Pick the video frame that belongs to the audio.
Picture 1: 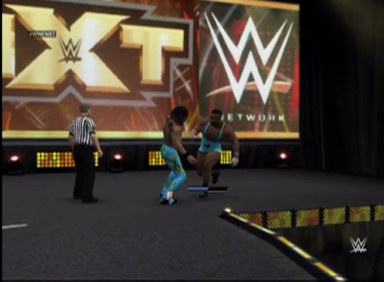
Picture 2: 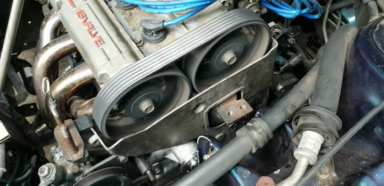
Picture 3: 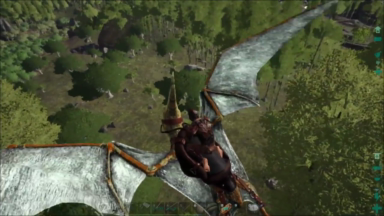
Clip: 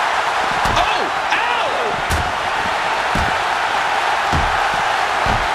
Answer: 1